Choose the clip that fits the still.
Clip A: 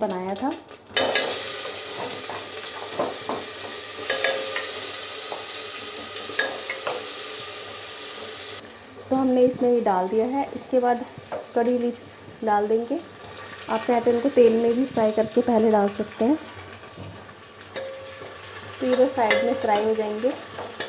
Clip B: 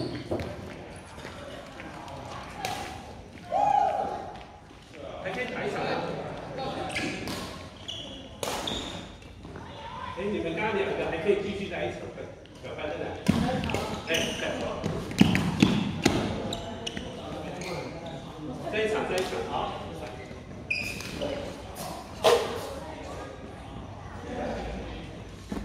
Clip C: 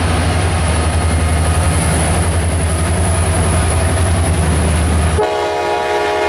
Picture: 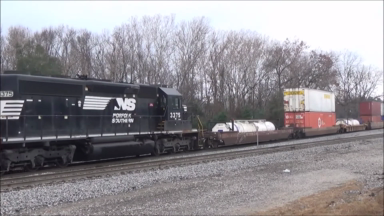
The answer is C